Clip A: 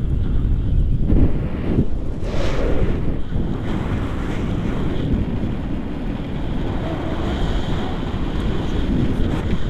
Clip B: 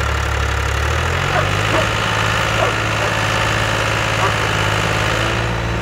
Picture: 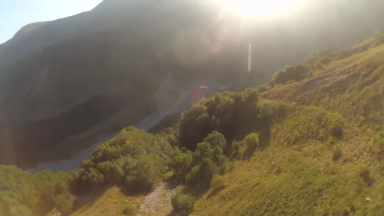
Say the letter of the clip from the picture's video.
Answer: A